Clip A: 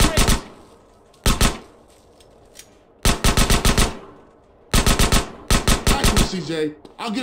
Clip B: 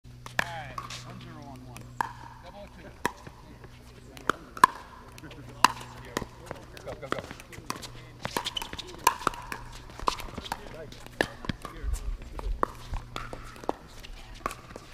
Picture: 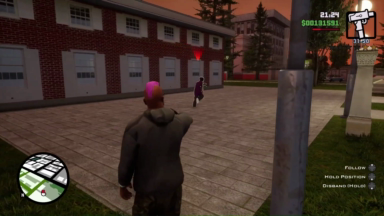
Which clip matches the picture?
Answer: A